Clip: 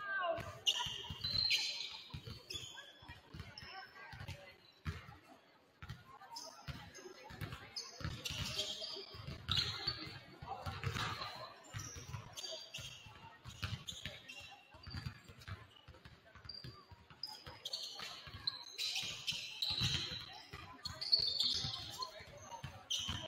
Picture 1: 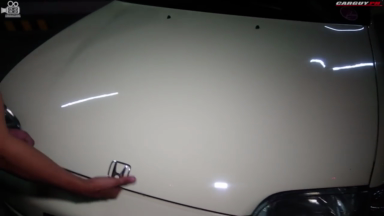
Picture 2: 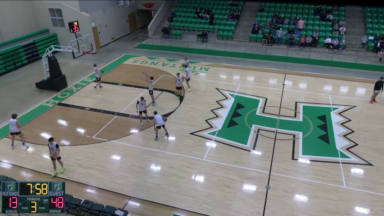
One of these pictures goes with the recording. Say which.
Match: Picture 2